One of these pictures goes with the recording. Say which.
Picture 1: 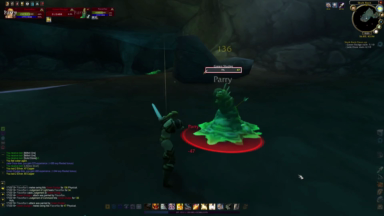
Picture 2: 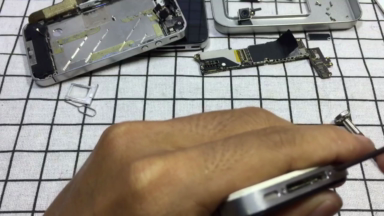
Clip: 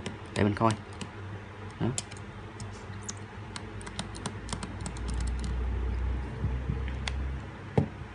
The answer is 2